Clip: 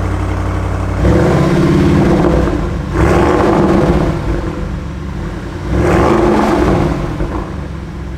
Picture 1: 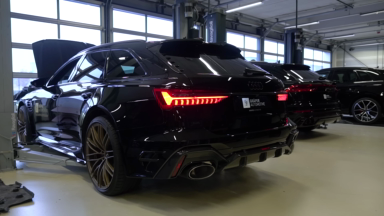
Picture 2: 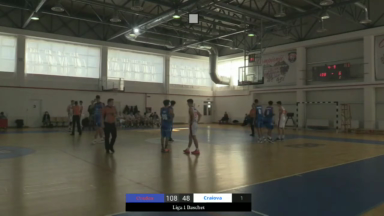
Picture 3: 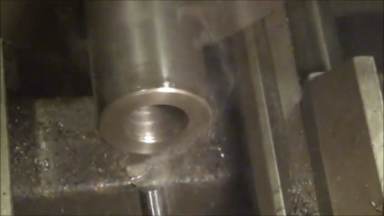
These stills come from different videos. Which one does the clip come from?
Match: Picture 1